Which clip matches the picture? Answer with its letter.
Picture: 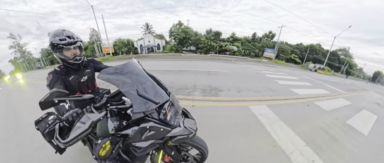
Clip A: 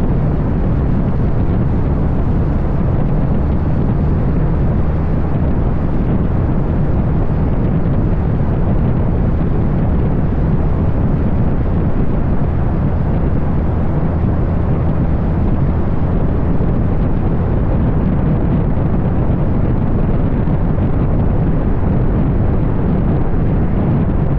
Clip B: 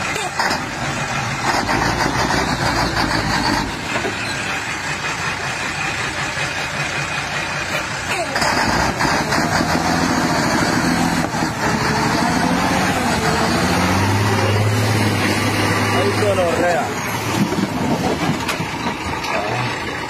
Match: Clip A